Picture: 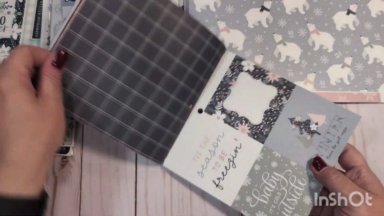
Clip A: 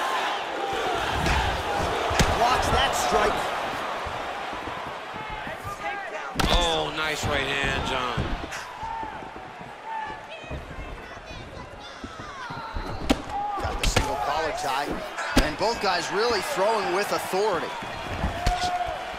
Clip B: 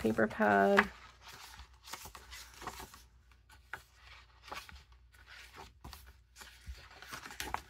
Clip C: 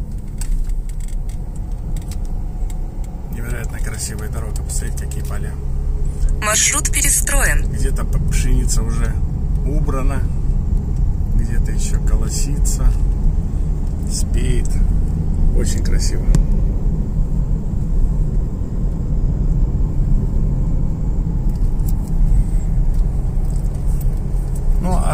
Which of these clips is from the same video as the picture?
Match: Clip B